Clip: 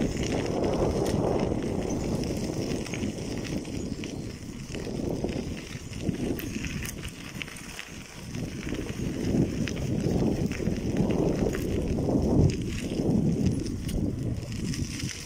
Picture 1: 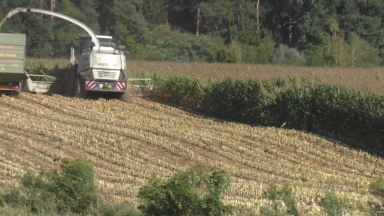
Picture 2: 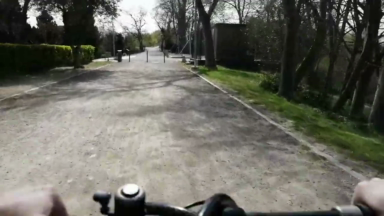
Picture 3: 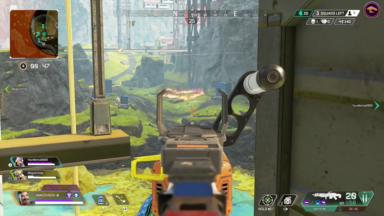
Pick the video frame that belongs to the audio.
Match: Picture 2